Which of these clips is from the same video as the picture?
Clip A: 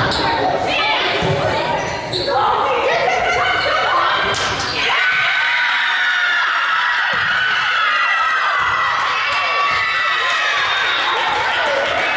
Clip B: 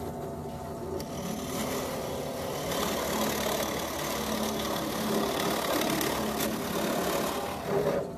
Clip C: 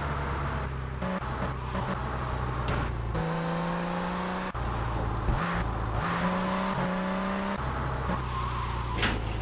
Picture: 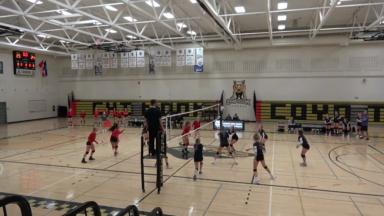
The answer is A